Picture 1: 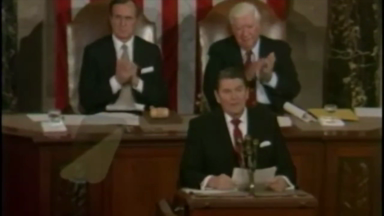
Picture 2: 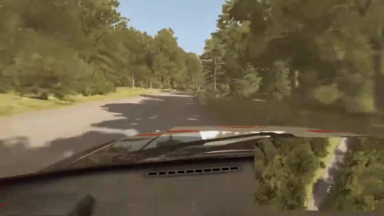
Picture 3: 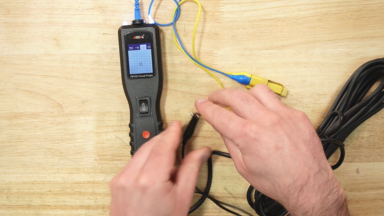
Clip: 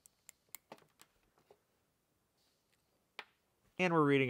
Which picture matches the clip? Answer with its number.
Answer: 3